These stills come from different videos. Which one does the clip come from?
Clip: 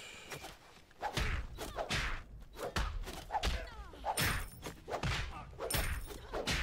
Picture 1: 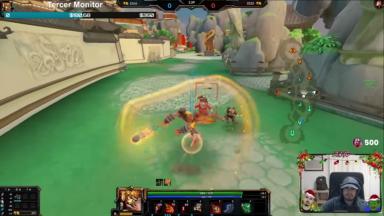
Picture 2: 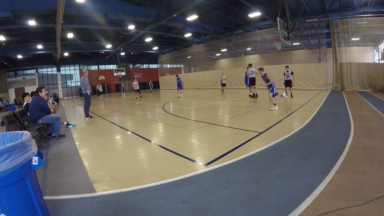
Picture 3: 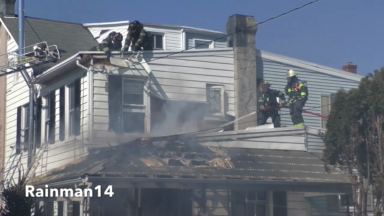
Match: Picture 1